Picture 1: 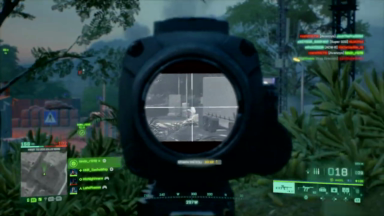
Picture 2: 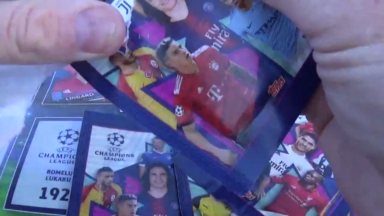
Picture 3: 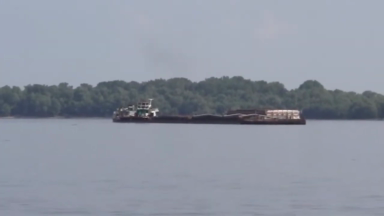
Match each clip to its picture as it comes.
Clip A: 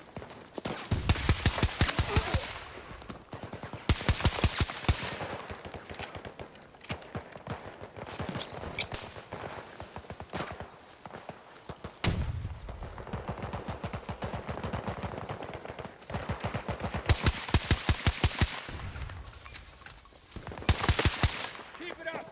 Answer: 1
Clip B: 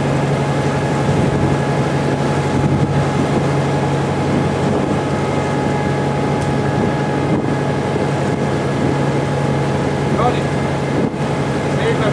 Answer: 3